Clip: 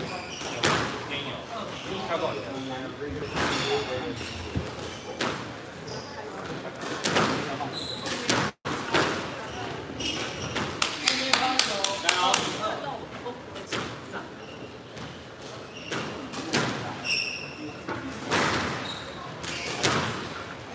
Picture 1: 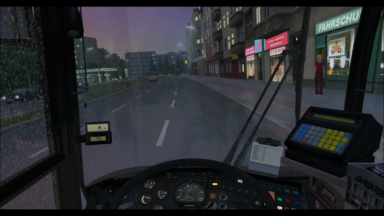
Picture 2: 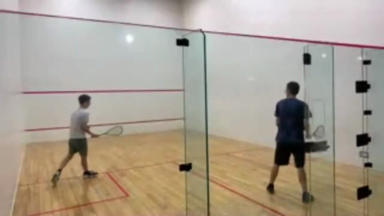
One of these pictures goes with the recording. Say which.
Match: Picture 2